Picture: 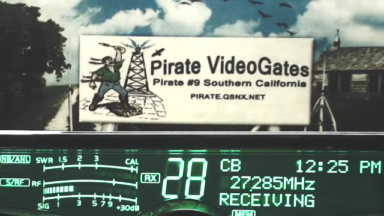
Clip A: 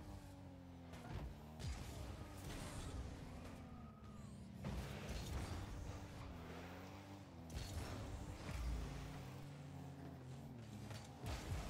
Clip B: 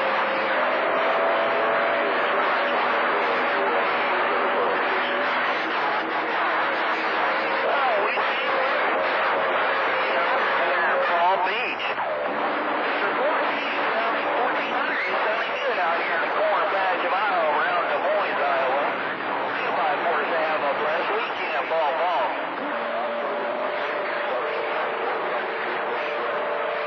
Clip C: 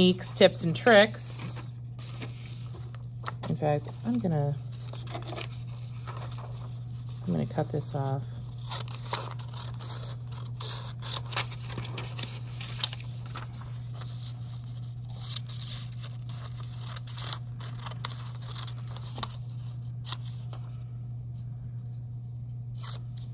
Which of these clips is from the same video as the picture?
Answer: B